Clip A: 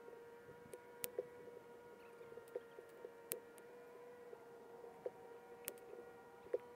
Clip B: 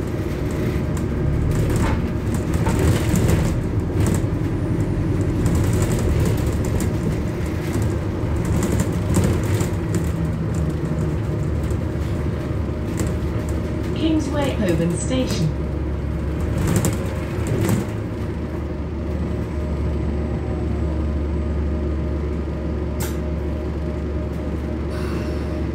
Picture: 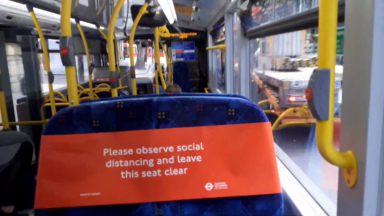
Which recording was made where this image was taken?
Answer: B